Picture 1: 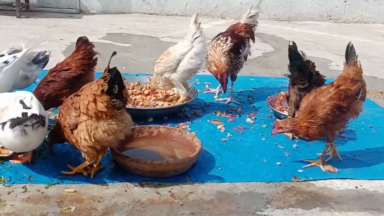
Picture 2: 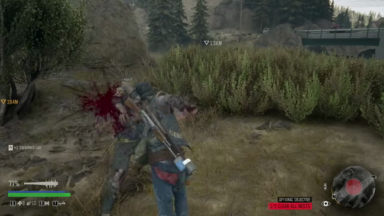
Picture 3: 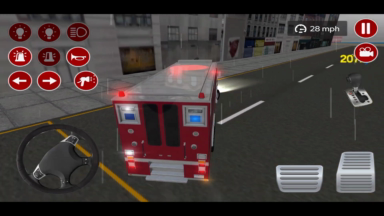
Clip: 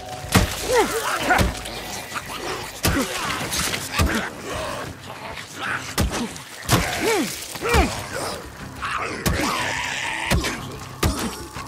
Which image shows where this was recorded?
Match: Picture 2